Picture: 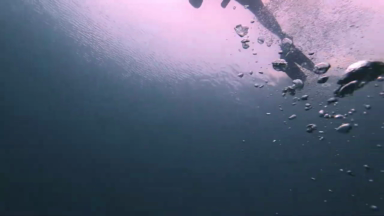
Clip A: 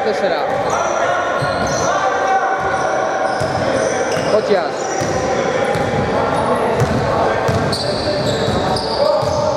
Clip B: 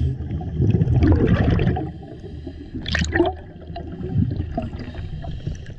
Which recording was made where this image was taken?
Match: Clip B